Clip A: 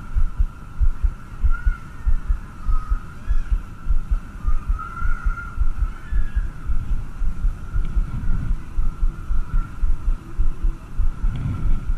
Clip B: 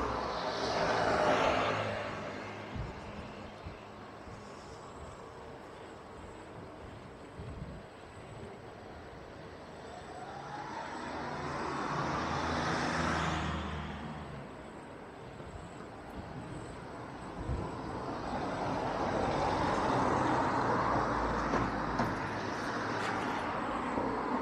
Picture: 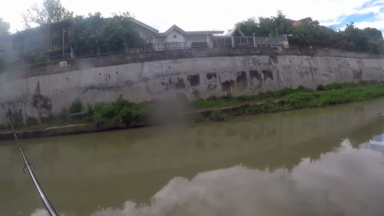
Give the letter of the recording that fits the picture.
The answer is A